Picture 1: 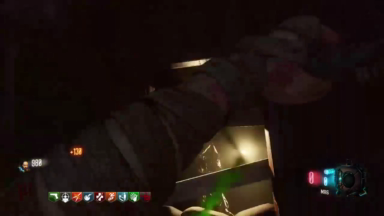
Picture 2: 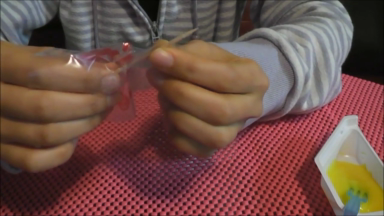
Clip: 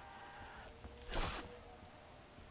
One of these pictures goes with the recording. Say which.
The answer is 1